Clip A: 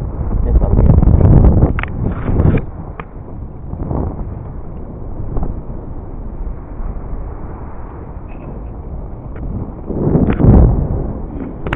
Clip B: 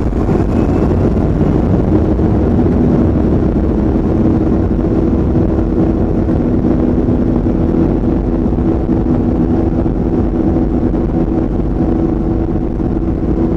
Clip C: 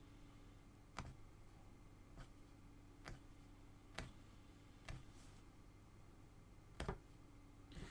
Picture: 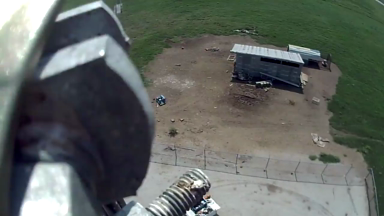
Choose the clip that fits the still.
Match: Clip A